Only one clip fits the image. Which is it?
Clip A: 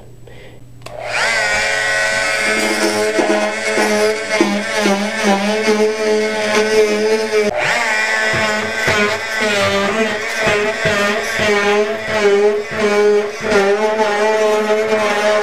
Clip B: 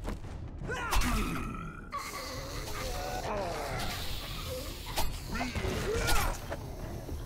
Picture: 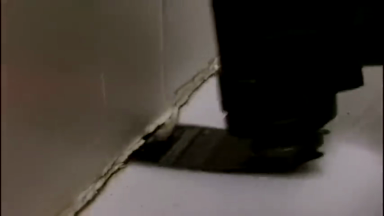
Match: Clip A